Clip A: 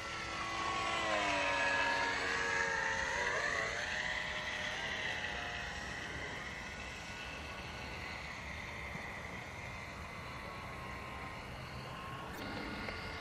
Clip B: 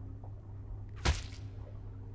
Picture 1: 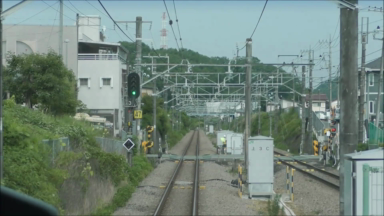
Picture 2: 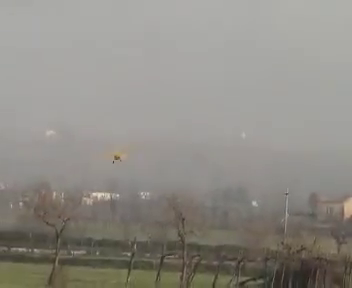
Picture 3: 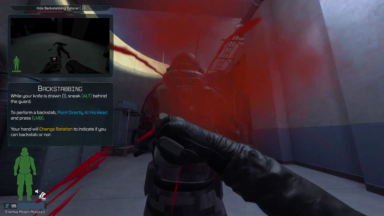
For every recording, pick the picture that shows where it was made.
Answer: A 2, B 3